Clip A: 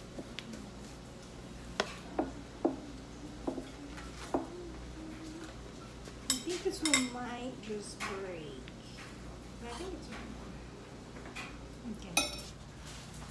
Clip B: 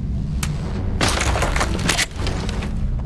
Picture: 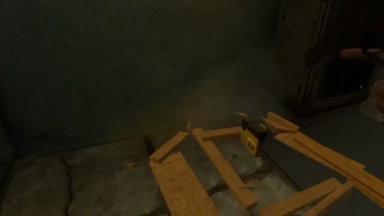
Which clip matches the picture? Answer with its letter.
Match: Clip B